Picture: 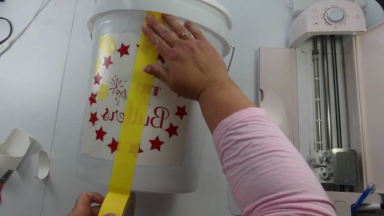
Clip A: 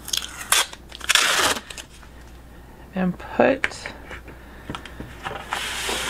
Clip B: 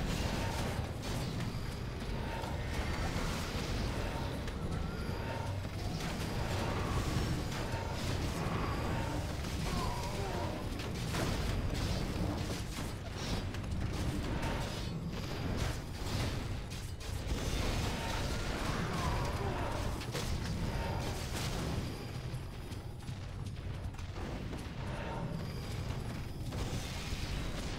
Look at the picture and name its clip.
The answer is A